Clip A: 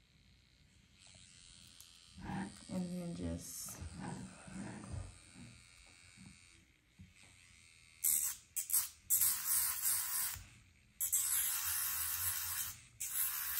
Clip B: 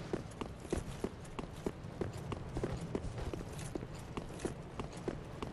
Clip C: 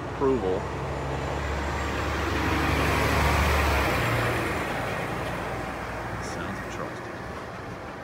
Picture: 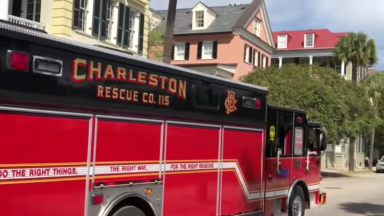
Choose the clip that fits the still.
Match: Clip C